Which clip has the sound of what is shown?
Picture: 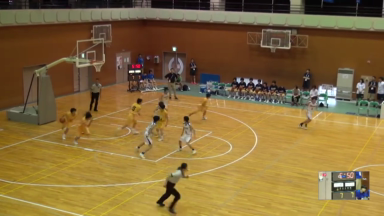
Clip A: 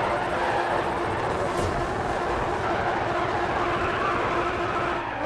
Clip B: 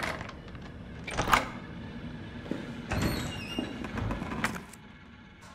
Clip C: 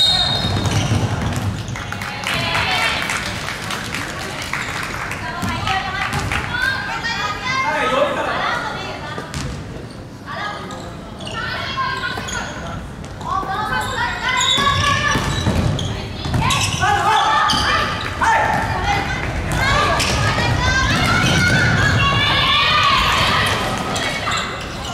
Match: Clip C